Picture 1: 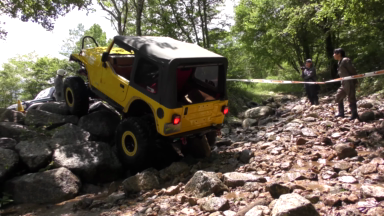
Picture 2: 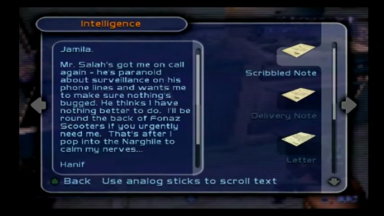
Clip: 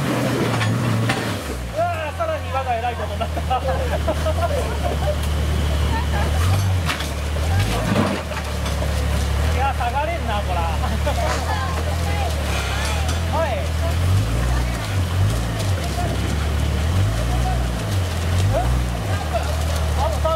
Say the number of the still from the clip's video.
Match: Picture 1